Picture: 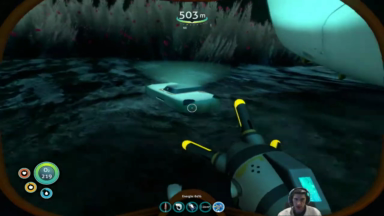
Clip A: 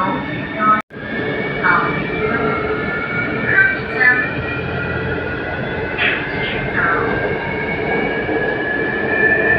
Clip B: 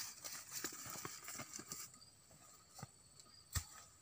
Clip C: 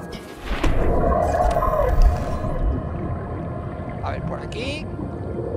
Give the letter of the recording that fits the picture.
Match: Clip C